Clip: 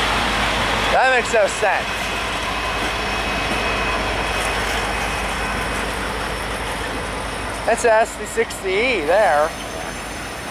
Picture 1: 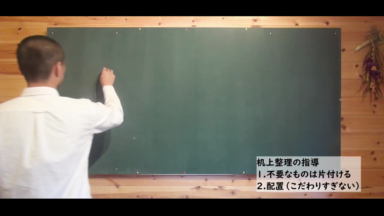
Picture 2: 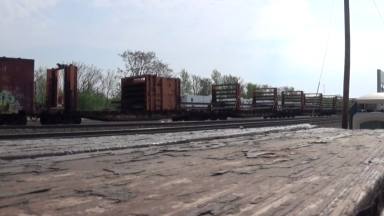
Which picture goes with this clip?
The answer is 2